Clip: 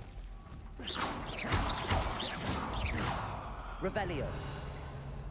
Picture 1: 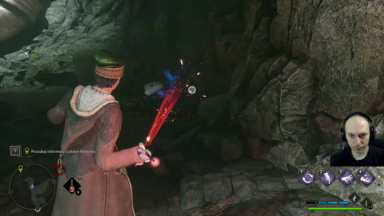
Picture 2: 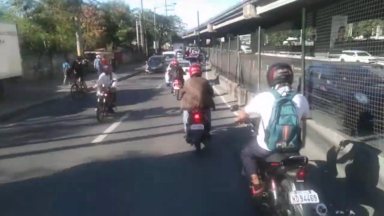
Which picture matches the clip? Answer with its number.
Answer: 1